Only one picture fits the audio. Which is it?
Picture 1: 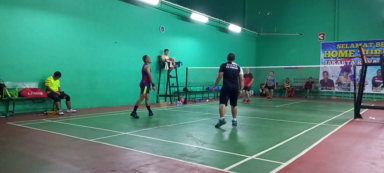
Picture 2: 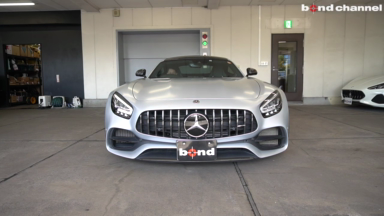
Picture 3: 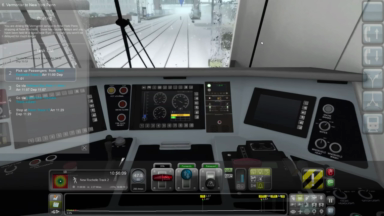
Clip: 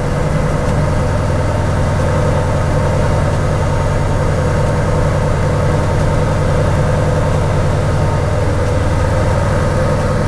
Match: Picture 2